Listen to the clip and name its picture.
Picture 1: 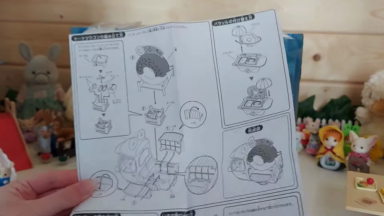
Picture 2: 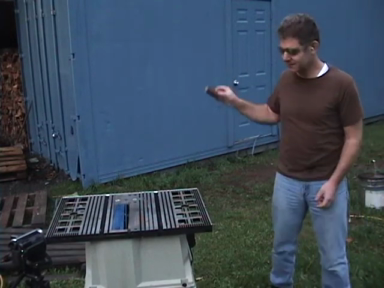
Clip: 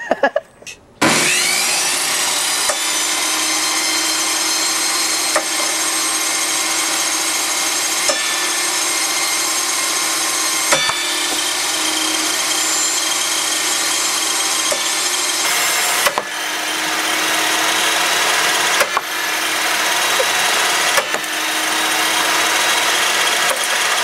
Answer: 2